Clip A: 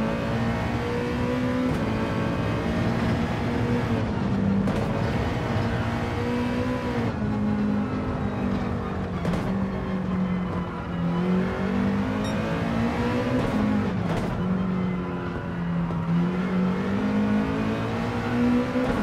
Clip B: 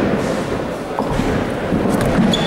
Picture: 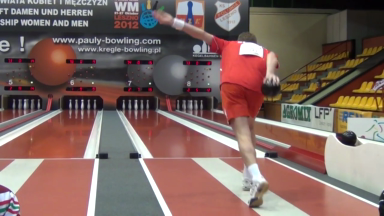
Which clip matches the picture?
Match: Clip B